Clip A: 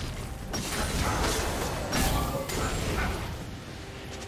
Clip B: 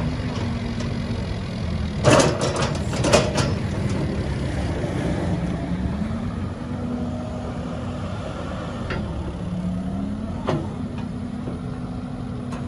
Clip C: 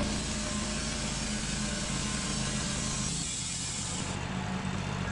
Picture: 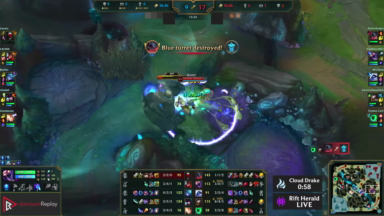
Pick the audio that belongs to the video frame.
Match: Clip A